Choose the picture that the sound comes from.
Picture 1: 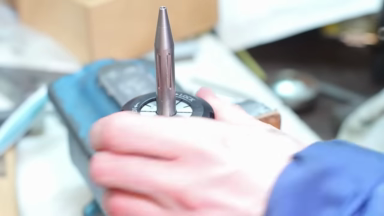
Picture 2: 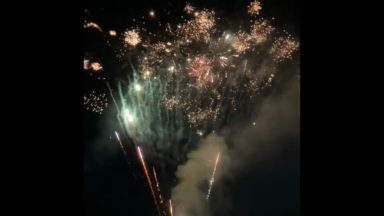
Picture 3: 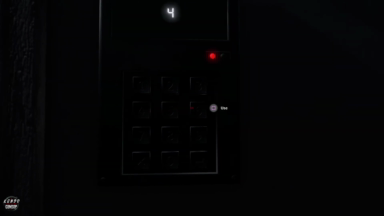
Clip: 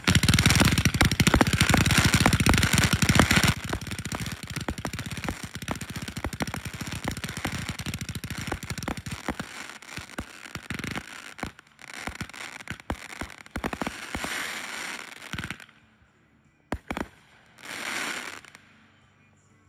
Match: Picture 2